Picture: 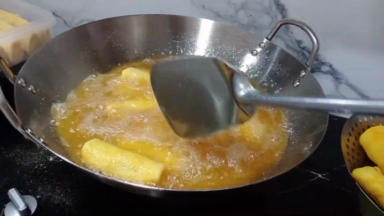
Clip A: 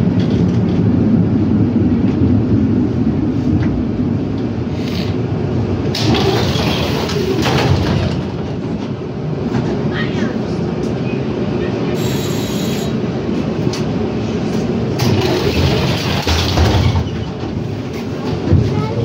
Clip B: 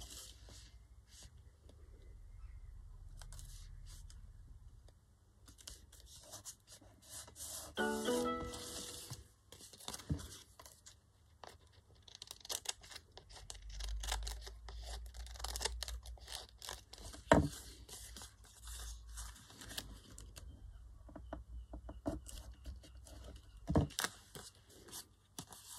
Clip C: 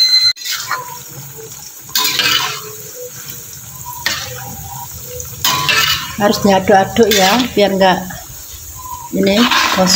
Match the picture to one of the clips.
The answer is C